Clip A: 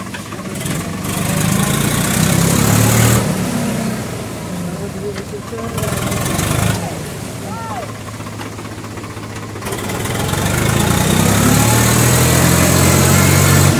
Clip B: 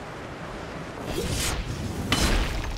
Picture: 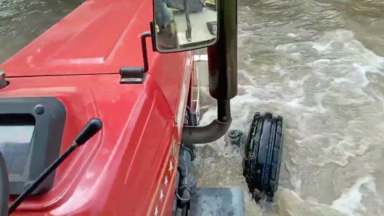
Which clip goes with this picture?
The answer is A